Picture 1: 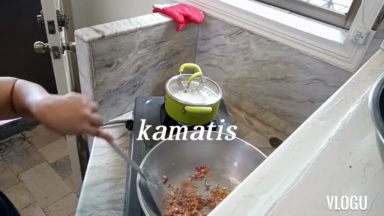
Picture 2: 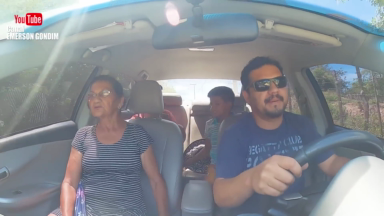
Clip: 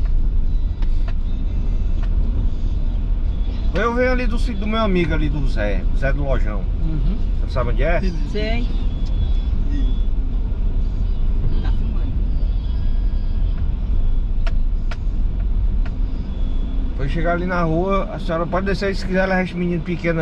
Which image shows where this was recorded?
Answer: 2